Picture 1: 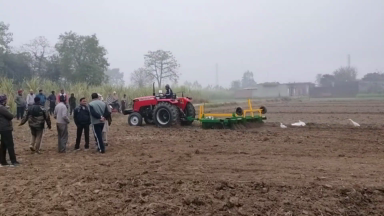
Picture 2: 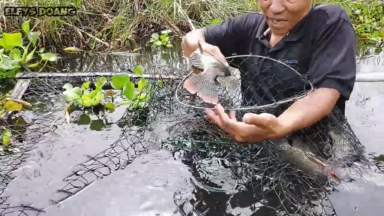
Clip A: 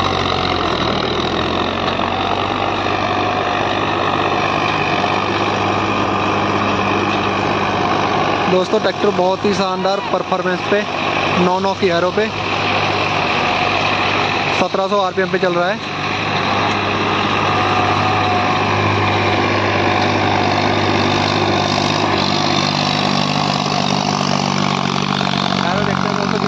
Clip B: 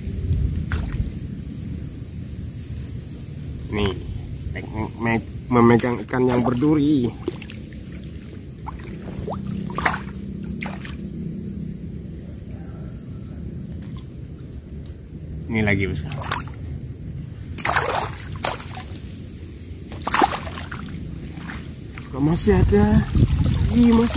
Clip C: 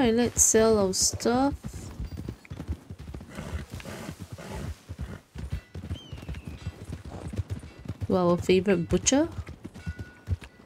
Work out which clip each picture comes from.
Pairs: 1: A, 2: B